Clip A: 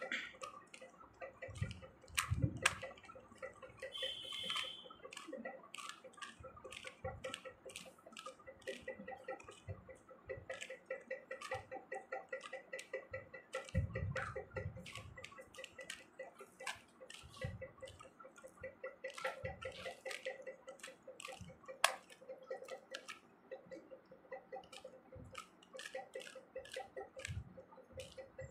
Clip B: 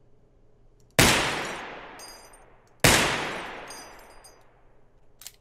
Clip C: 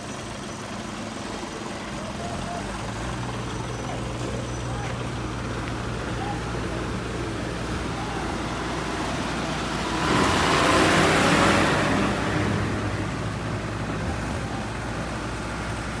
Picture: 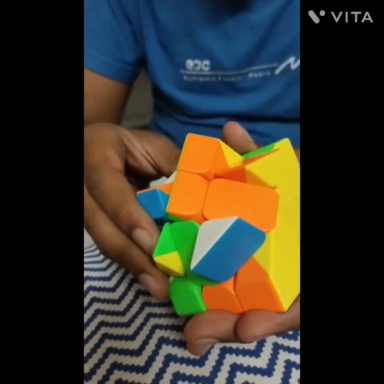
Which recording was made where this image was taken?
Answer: A